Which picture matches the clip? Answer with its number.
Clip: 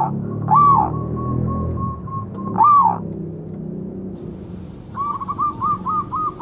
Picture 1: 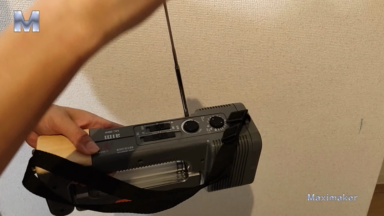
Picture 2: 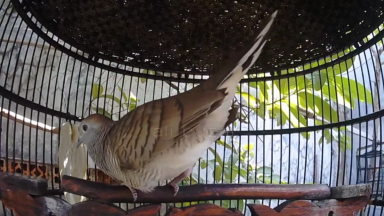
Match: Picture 2